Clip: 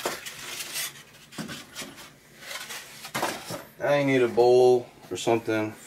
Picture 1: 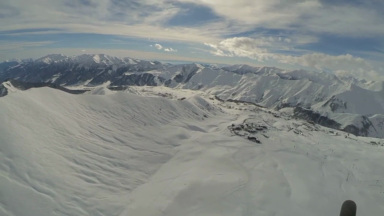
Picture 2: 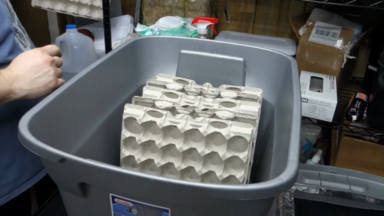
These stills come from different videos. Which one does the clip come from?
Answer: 2